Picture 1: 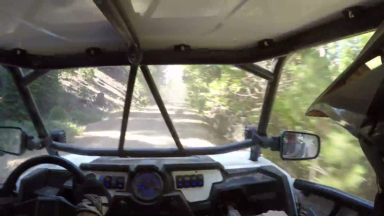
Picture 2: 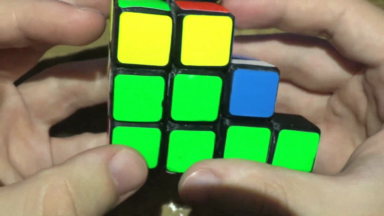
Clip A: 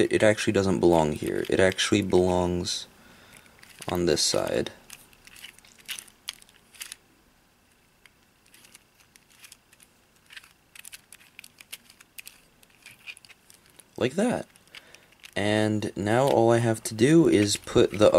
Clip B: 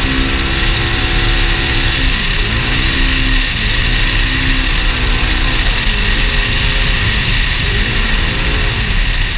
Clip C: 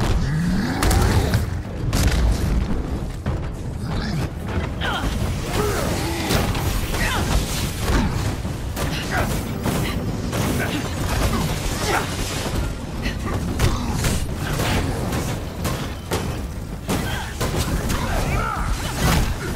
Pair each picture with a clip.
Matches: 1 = B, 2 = A